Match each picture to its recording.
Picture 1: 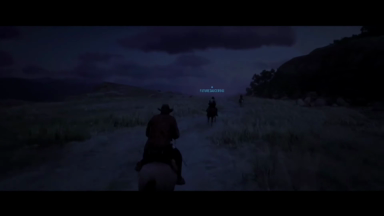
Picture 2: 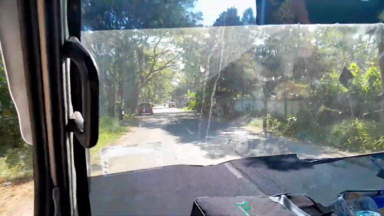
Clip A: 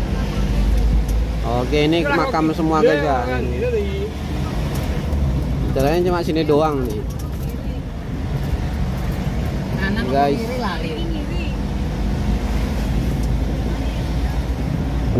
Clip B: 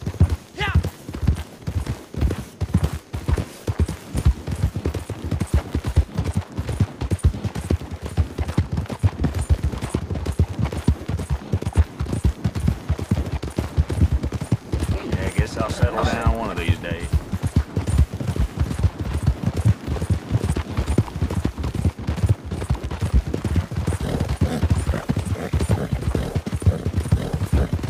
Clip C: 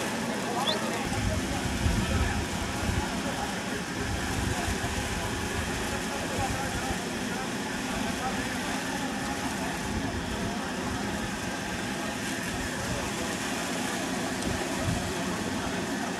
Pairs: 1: B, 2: A